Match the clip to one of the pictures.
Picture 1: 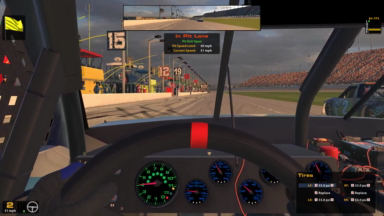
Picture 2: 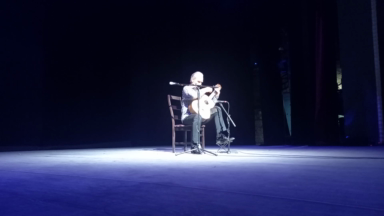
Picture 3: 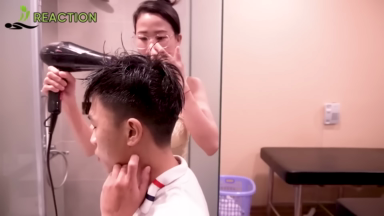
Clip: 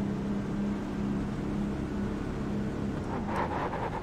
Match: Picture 1